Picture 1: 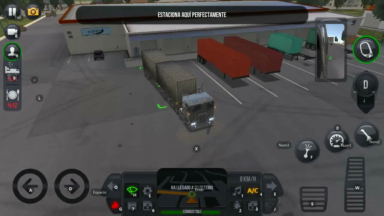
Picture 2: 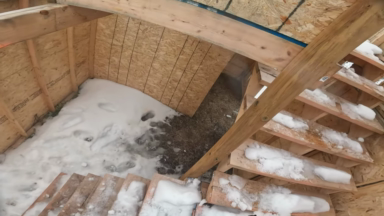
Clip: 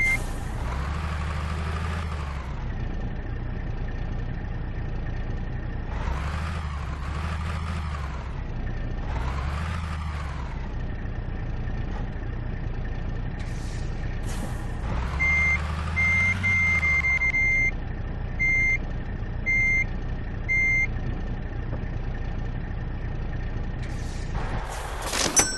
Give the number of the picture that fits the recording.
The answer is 1